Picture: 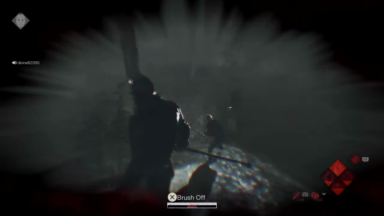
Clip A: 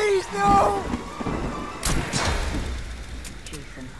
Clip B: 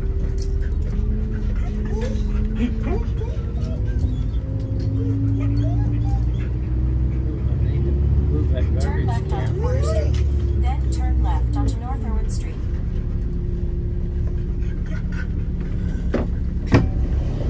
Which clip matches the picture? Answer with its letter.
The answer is A